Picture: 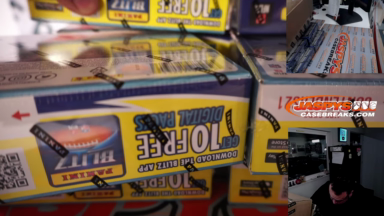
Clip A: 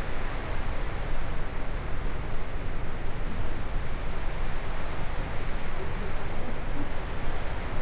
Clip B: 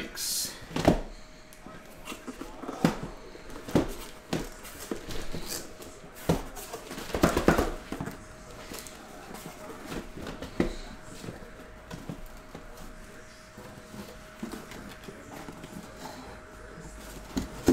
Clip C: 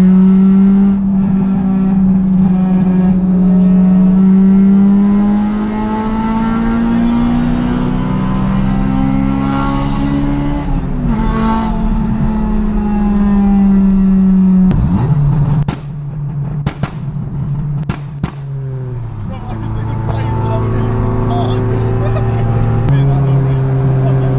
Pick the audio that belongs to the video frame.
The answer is B